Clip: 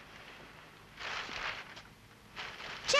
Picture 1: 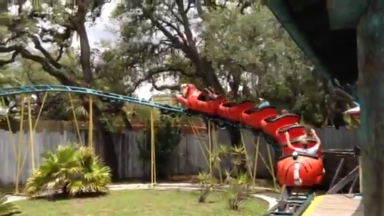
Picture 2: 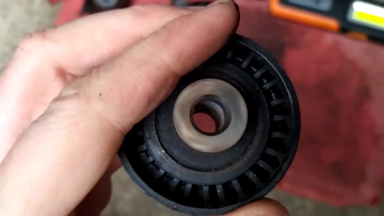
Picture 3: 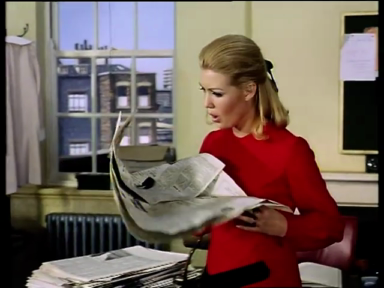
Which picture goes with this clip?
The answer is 3